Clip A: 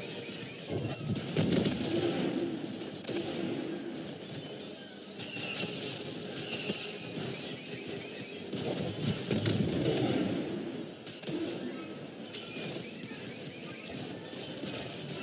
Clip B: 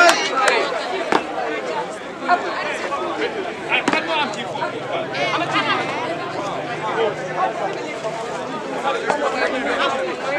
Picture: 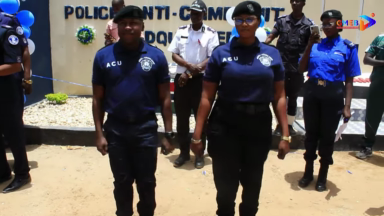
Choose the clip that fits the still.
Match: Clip B